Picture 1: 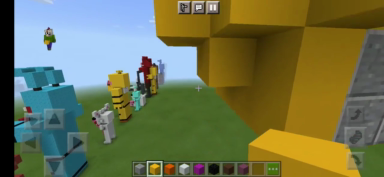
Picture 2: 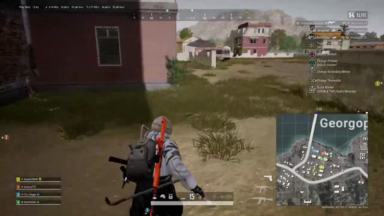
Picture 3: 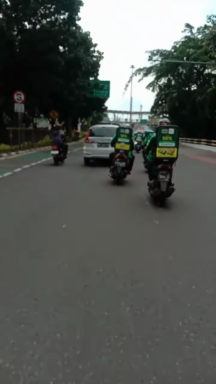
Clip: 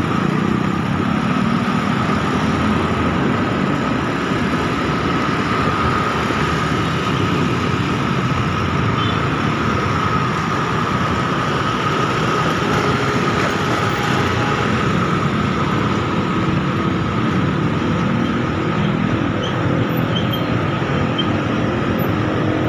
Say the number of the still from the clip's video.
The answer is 3